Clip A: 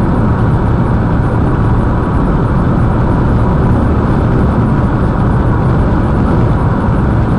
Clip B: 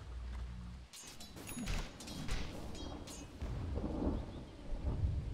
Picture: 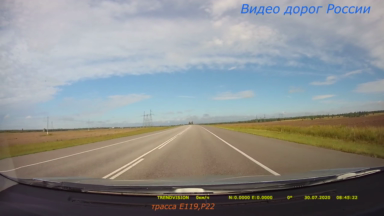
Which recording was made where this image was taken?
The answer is A